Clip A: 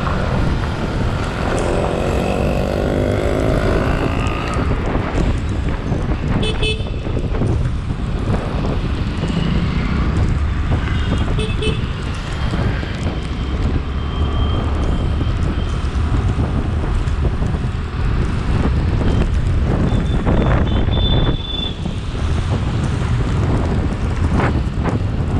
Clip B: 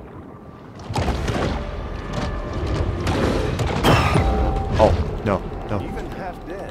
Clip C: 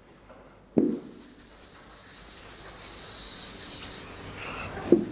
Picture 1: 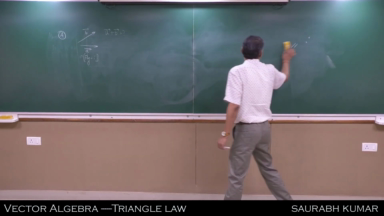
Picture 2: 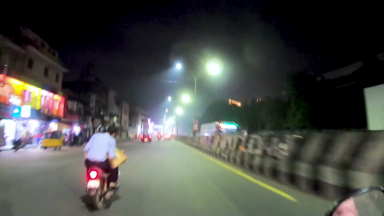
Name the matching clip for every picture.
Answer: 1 C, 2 A